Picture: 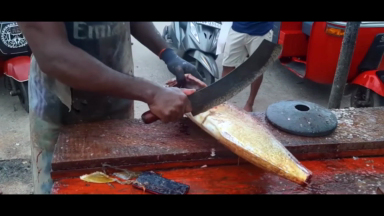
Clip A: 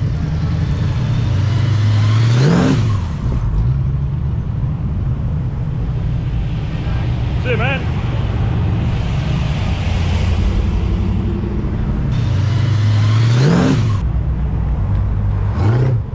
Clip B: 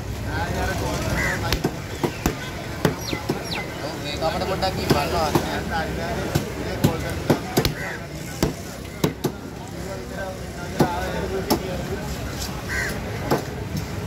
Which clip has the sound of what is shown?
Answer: B